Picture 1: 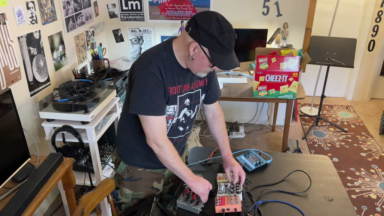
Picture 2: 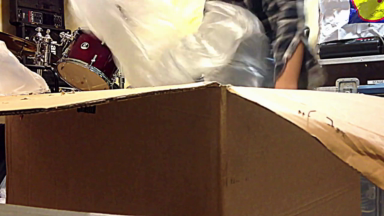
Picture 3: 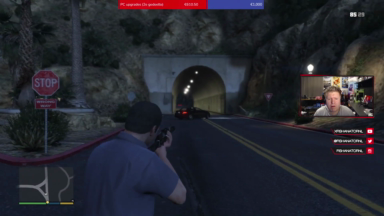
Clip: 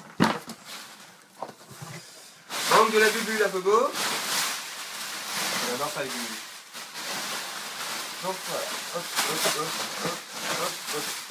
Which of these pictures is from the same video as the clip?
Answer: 2